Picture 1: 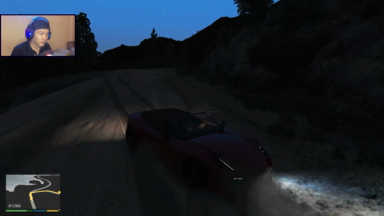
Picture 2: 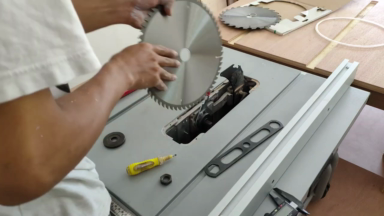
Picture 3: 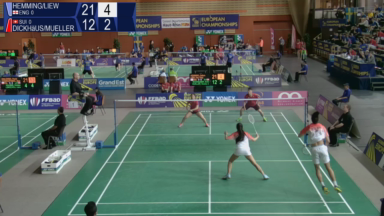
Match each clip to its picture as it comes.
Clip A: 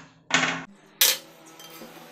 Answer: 2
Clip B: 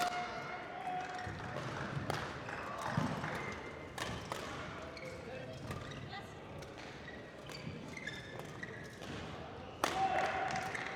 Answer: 3